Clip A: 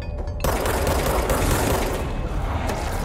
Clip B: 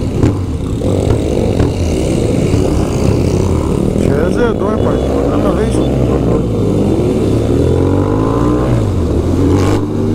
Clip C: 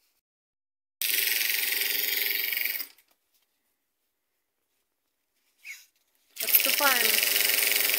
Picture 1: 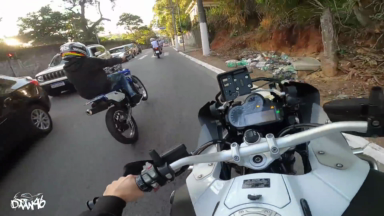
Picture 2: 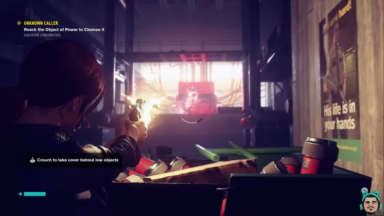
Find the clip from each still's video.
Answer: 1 B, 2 A